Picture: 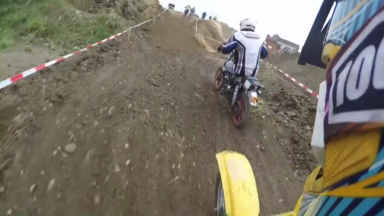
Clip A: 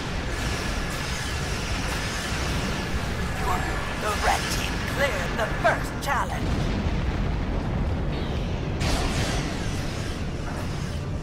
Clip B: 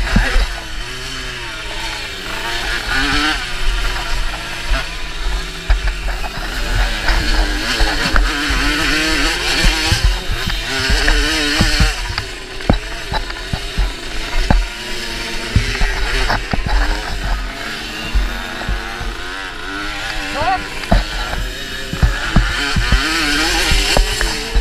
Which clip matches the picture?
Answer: B